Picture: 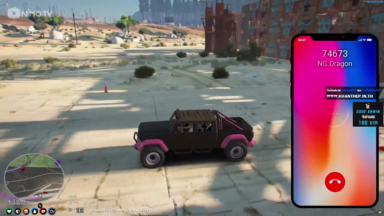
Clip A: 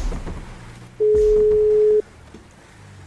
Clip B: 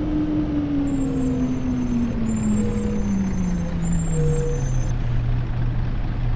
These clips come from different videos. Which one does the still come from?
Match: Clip A